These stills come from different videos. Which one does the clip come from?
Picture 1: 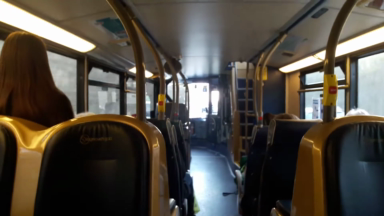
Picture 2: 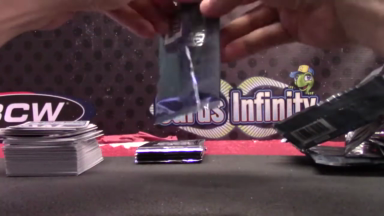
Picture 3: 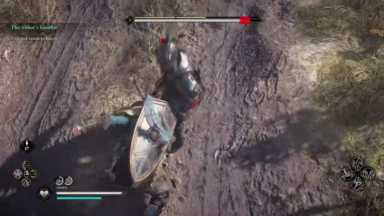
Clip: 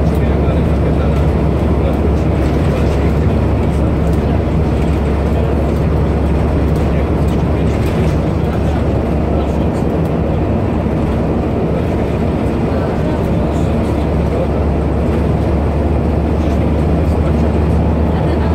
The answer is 1